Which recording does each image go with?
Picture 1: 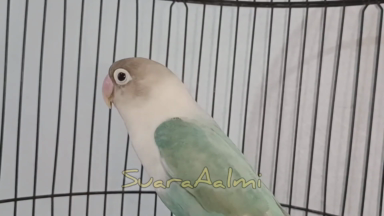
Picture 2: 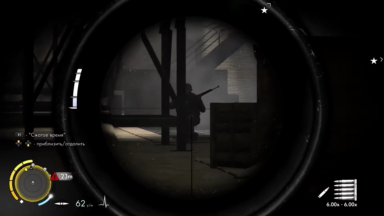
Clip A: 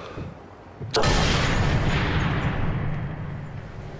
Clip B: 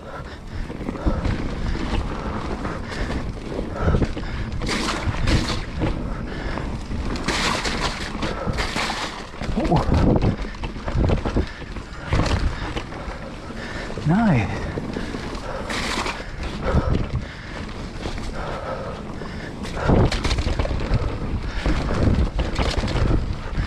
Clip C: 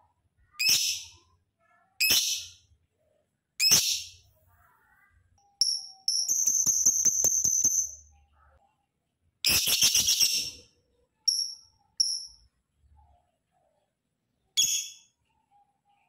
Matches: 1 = C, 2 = A